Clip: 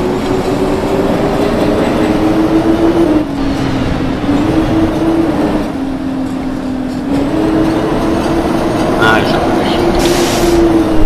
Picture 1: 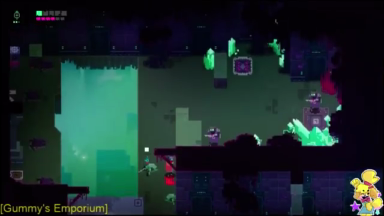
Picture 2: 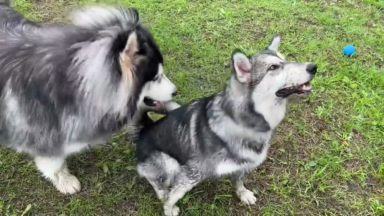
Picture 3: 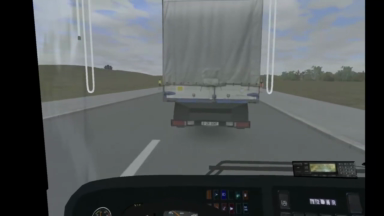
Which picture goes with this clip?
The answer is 3